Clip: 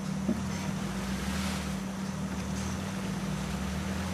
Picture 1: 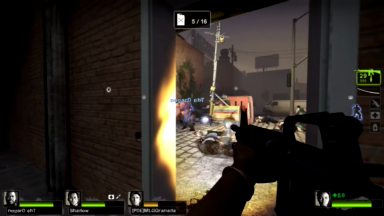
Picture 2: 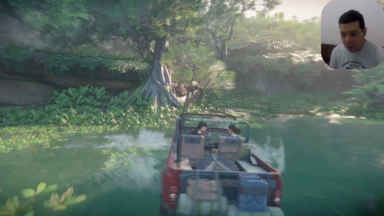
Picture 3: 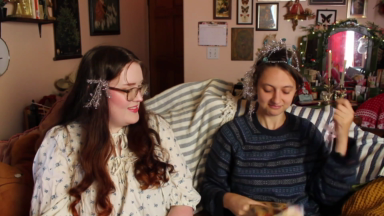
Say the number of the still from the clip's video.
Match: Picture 2